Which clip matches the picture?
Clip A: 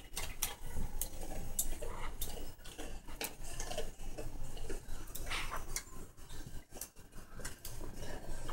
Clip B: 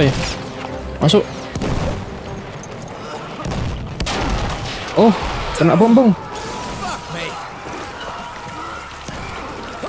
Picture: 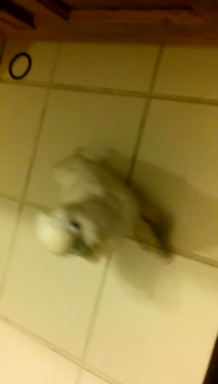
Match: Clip A